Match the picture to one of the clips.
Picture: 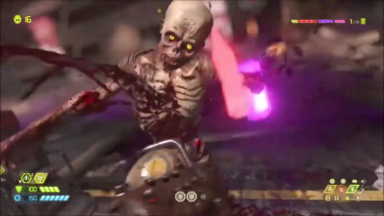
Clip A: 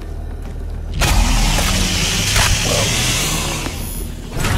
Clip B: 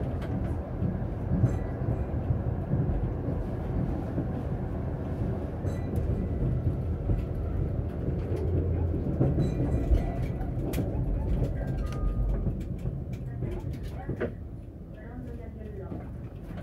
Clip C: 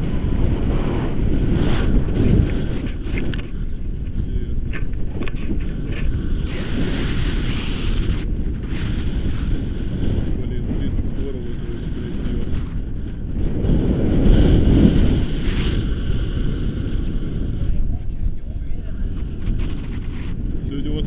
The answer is A